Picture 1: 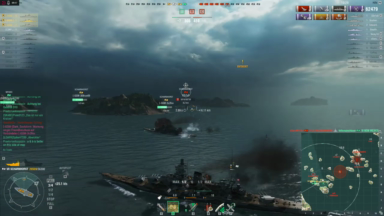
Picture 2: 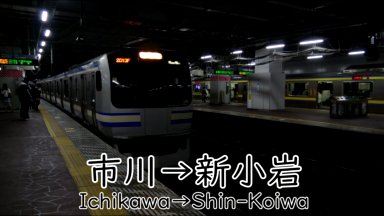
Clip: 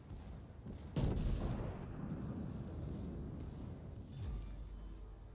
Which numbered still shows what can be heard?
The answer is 1